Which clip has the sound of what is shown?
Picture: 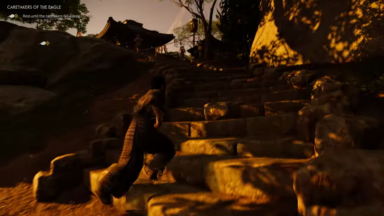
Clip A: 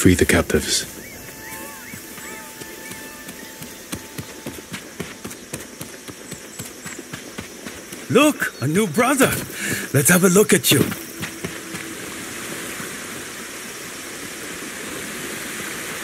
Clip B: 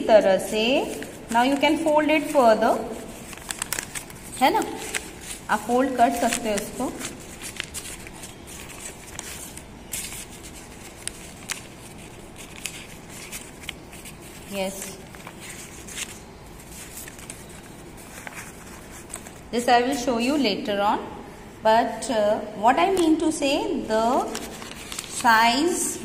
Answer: A